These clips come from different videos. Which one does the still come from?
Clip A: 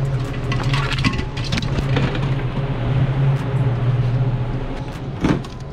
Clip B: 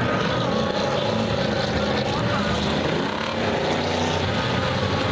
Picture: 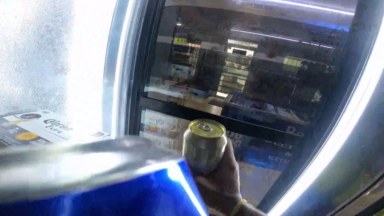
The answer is A